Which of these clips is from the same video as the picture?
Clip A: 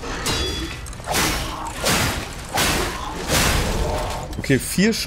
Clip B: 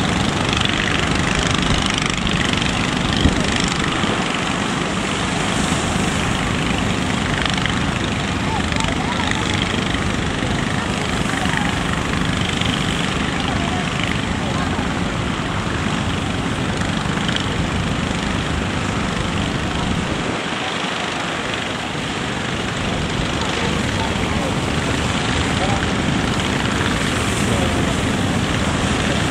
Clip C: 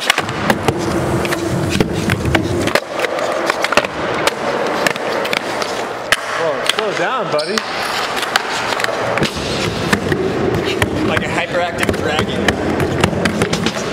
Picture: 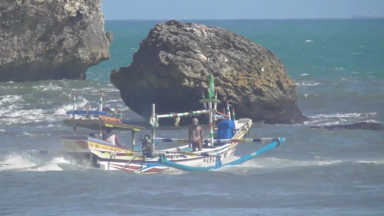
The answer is B